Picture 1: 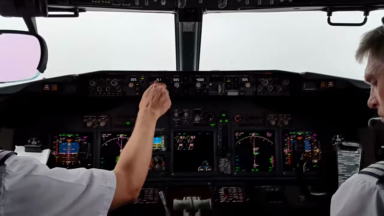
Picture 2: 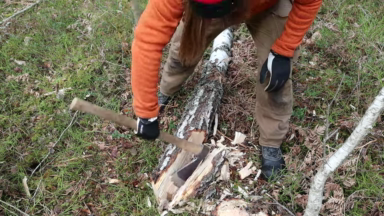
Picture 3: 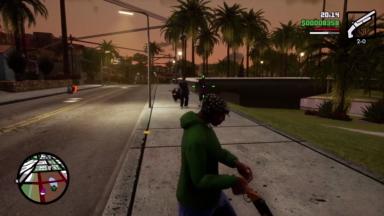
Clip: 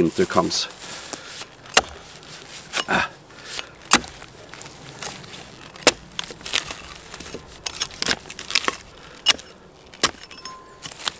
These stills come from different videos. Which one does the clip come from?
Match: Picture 2